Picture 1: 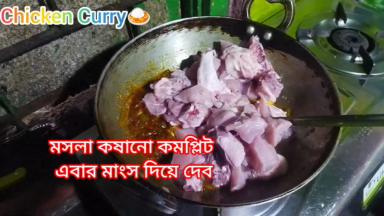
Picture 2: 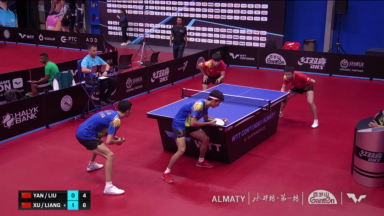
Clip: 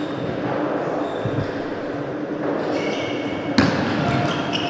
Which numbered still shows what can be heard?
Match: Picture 2